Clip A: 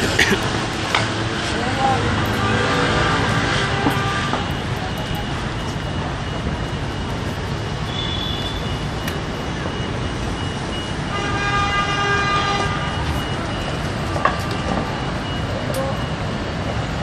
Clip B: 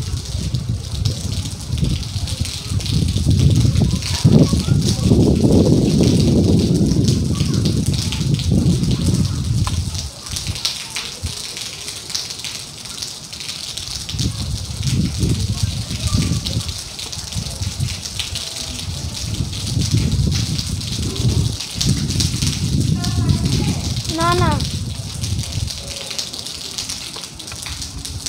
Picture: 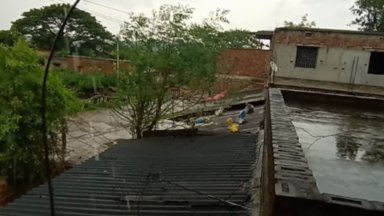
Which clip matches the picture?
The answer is B